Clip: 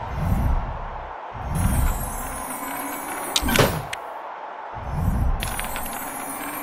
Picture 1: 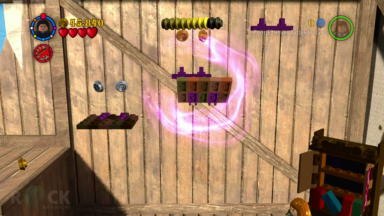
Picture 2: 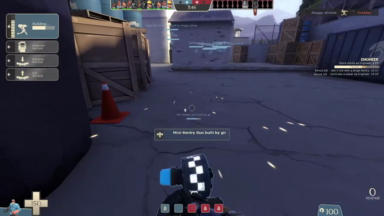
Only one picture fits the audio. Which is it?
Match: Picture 1